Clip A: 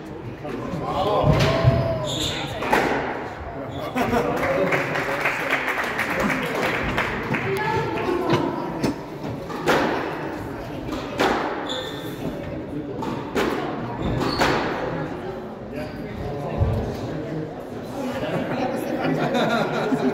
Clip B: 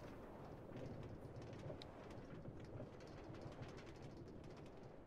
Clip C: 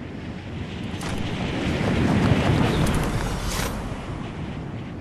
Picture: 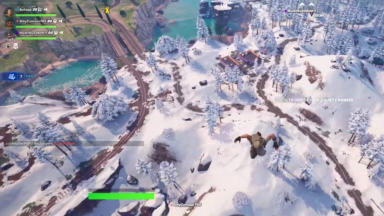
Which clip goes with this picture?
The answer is C